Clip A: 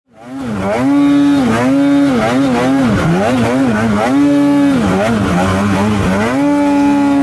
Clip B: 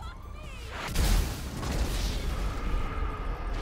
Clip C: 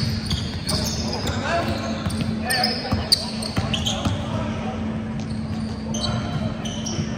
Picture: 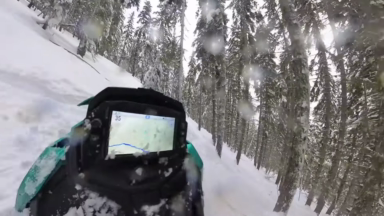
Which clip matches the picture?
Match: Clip A